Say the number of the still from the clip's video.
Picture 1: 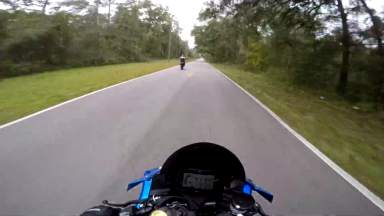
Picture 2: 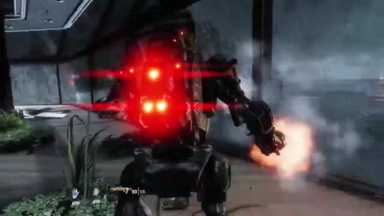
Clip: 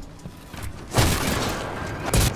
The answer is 2